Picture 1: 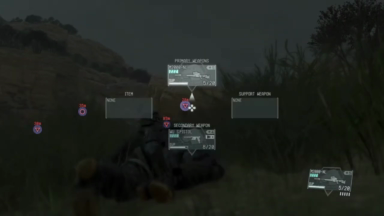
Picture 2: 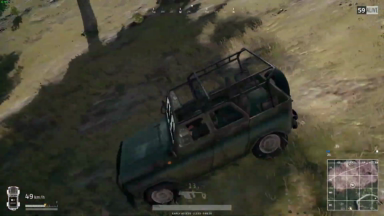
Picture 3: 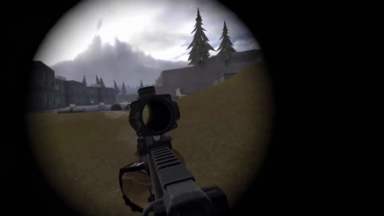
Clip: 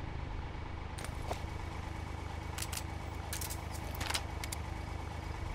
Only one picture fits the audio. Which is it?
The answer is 1